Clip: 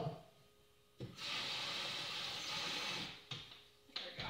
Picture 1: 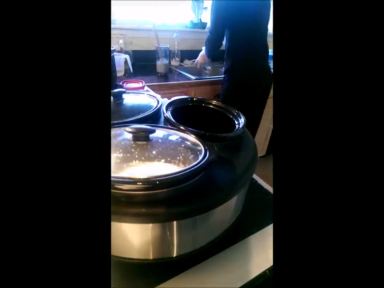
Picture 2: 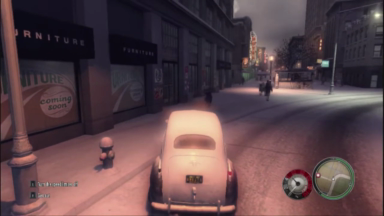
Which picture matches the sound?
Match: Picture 1